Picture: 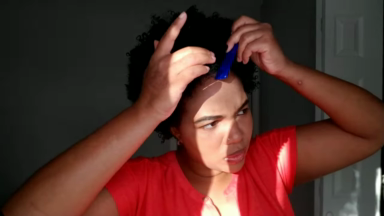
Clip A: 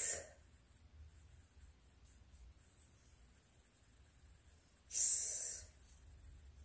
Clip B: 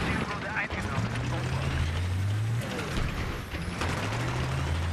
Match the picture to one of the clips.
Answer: A